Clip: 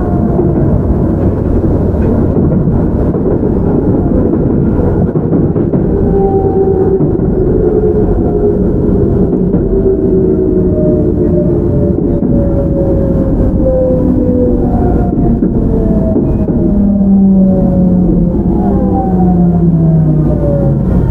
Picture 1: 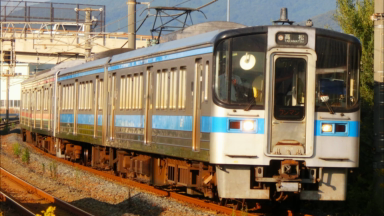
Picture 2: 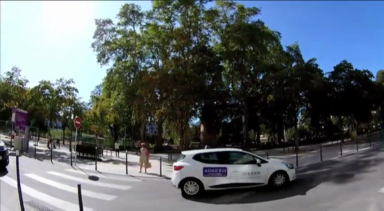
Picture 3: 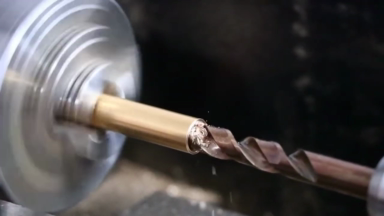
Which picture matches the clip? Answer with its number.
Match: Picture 1